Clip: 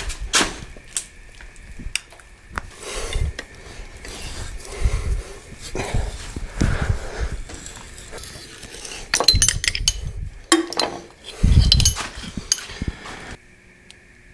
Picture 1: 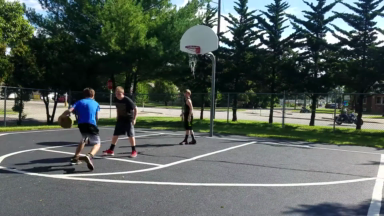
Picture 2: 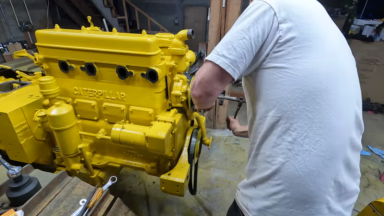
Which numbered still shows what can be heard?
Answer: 2